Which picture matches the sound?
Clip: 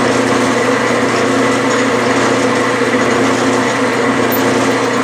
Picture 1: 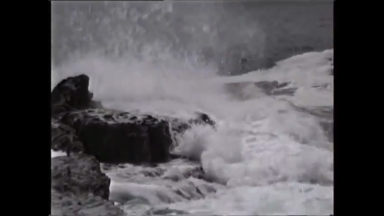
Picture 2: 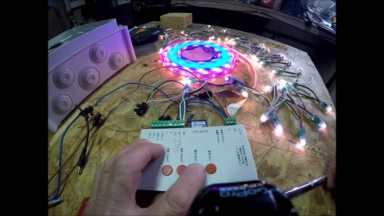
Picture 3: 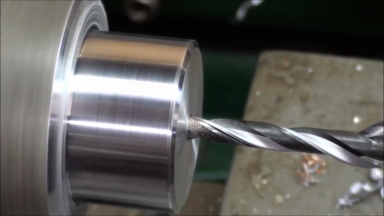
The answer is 3